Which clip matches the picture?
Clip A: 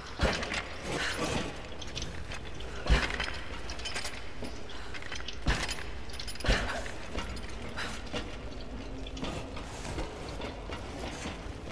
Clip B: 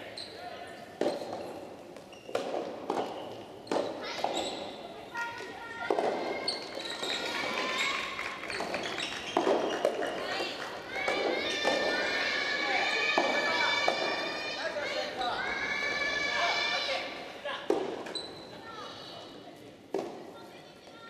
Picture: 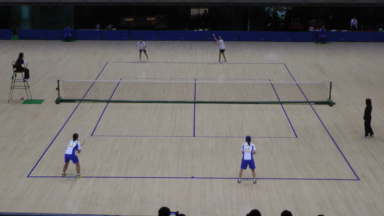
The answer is B